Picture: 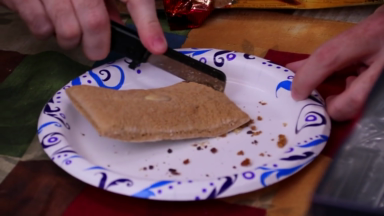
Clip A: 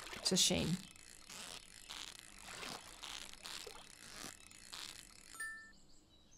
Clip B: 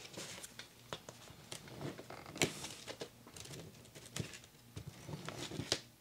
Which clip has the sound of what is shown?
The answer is B